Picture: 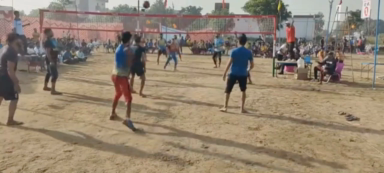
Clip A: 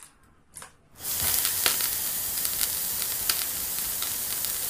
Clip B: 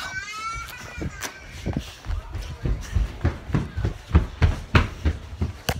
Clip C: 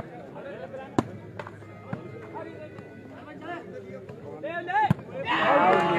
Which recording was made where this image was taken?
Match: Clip C